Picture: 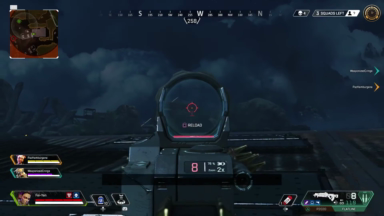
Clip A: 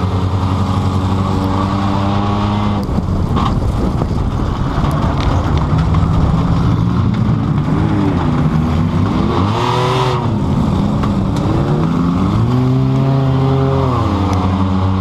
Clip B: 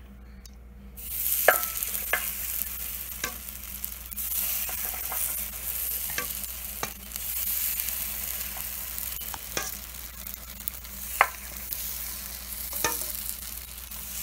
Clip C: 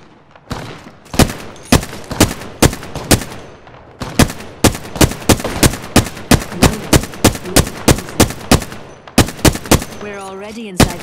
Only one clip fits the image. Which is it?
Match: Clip C